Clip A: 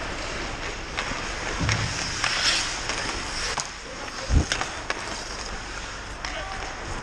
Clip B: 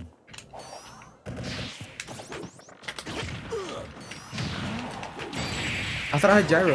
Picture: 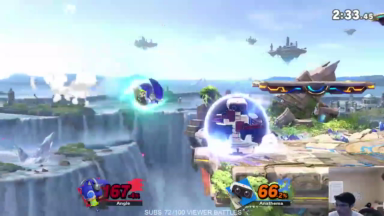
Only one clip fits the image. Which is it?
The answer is B